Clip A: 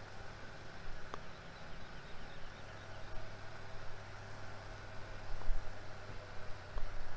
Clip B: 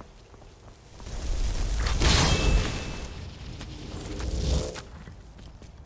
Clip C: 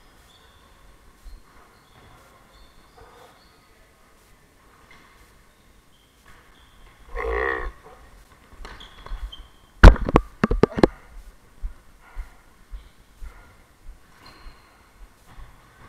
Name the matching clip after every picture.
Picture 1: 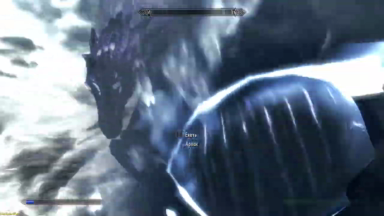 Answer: B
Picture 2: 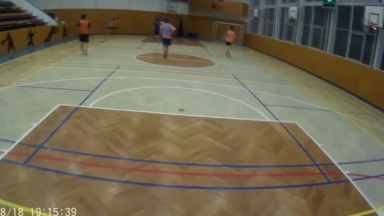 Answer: C